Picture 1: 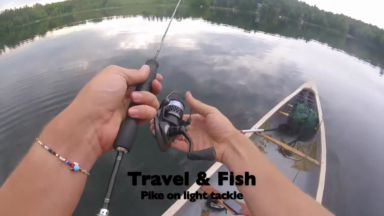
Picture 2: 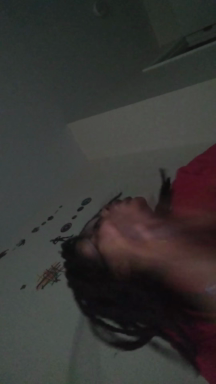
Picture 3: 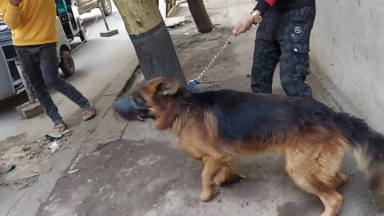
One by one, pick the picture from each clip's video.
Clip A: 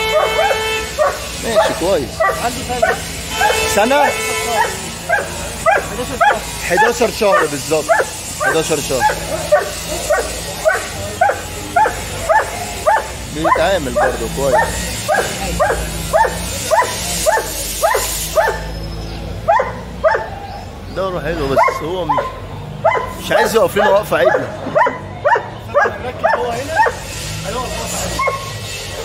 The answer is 3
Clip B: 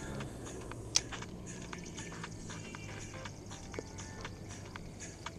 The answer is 1